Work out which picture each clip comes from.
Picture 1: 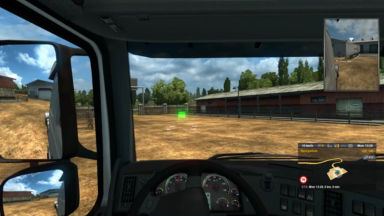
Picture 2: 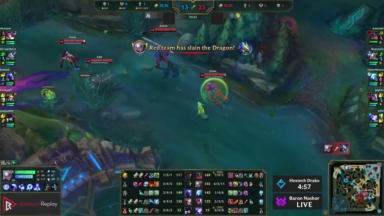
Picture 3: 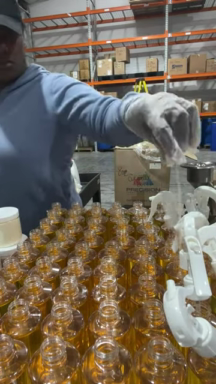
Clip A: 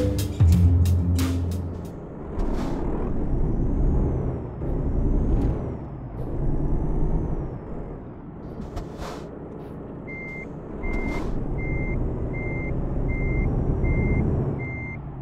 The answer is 1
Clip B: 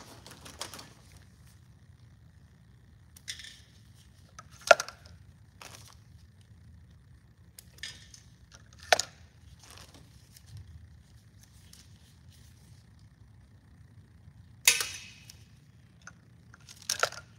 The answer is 3